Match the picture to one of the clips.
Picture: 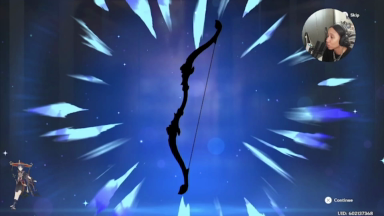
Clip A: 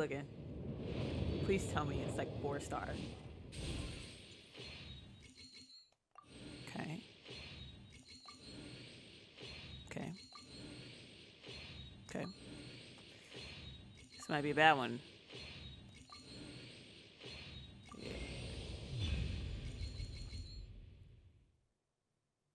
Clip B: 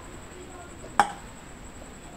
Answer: A